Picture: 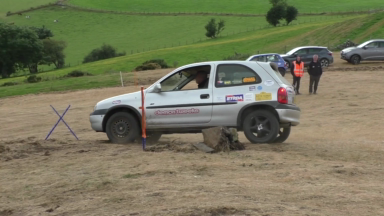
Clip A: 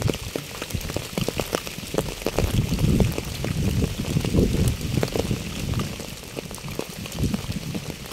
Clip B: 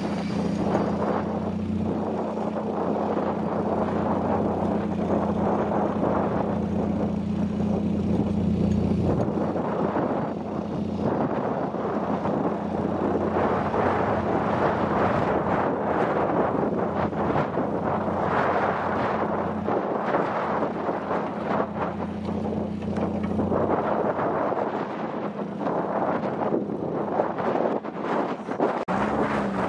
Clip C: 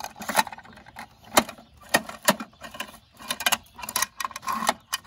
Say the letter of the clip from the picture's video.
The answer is B